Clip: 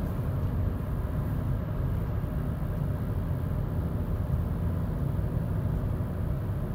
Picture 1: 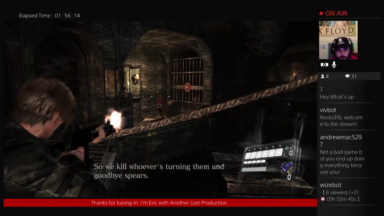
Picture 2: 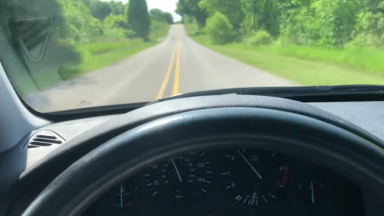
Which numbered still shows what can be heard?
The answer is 2